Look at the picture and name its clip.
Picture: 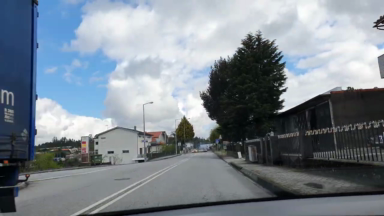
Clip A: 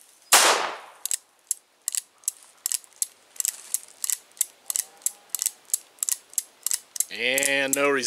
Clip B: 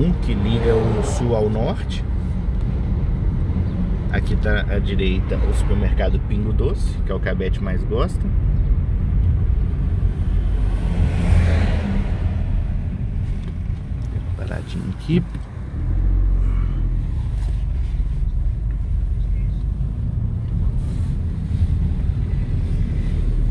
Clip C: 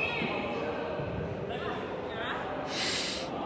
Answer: B